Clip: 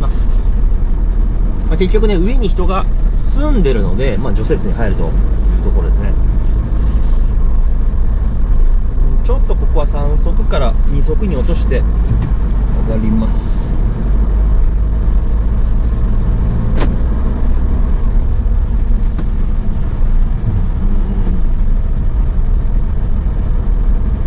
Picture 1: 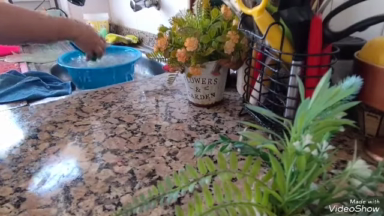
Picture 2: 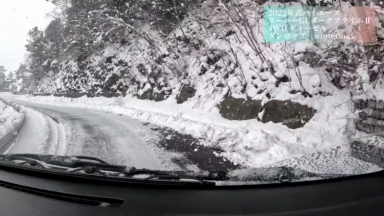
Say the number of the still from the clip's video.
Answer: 2